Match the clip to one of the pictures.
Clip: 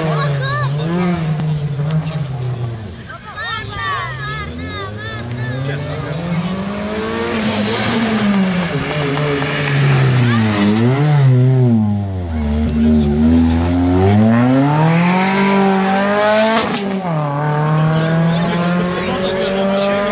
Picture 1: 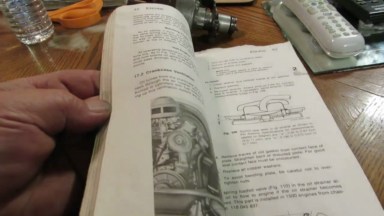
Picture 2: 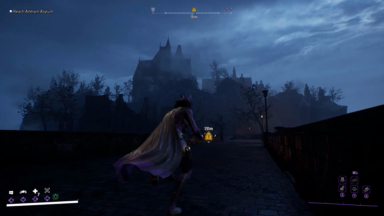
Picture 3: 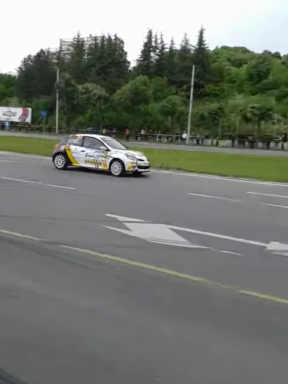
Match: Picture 3